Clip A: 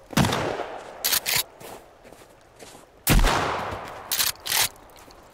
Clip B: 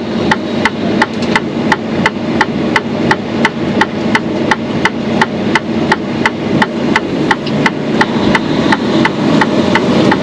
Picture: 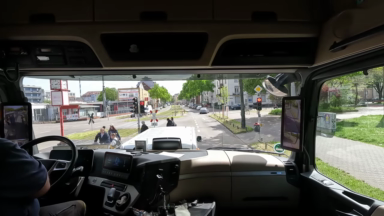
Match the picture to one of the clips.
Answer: B